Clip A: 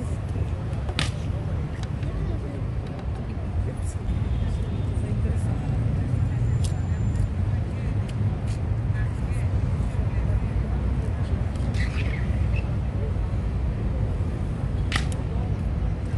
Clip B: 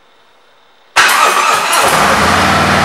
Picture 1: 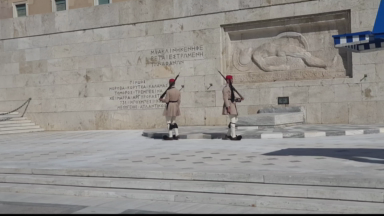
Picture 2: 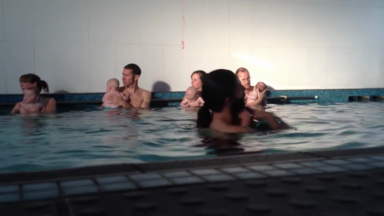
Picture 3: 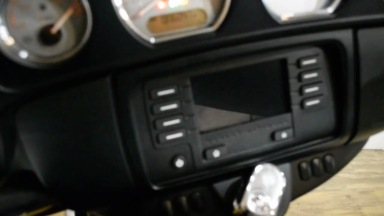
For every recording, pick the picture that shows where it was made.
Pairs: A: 1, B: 3